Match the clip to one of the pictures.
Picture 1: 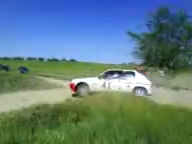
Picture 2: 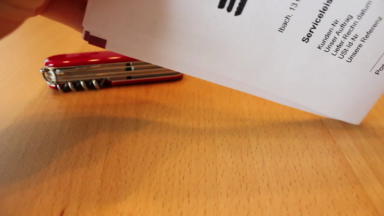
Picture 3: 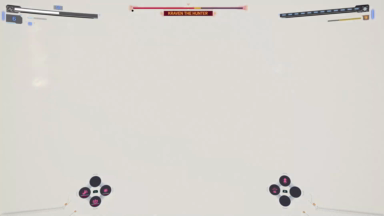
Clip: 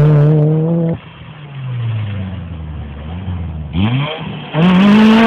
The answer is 1